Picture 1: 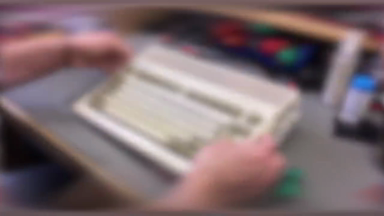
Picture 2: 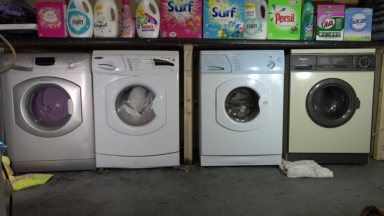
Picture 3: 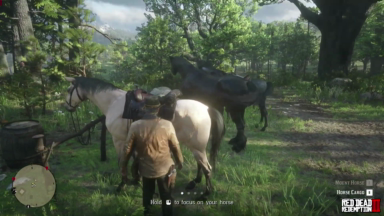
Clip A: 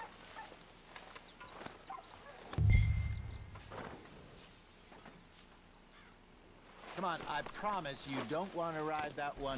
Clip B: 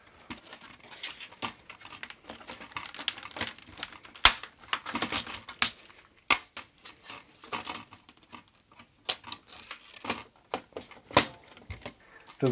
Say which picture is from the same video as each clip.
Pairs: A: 3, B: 1